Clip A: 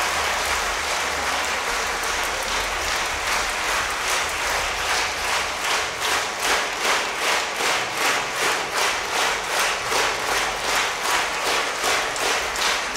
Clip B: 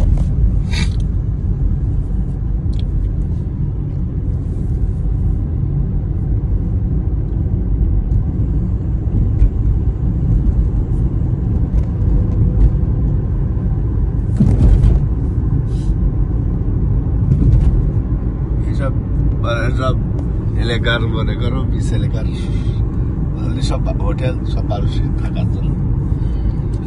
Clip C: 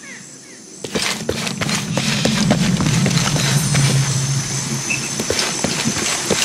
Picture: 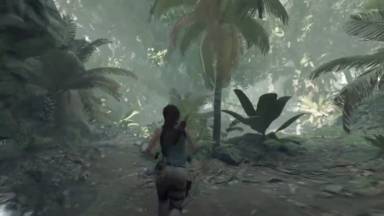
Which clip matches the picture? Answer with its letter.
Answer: C